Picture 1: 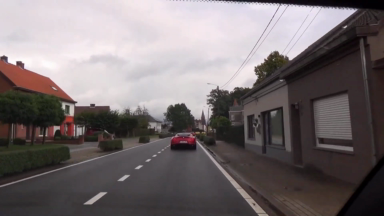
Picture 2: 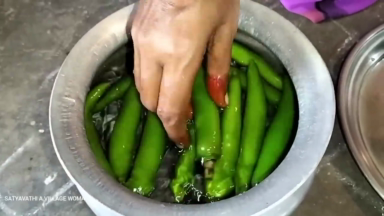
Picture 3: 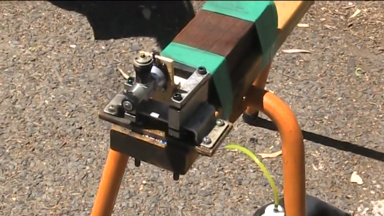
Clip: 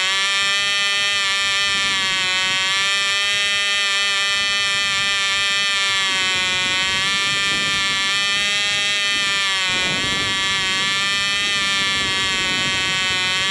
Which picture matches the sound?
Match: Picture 3